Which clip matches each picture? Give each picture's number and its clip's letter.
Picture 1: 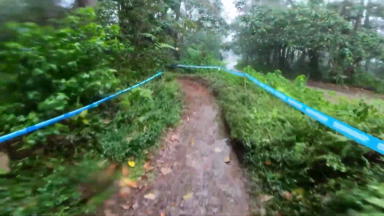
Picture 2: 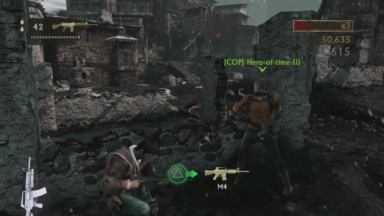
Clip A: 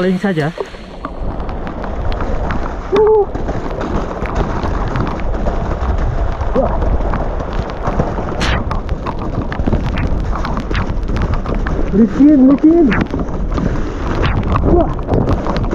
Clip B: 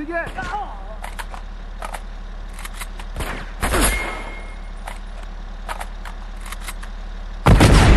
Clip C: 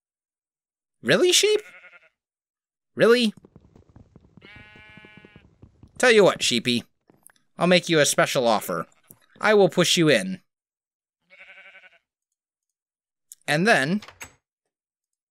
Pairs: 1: A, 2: B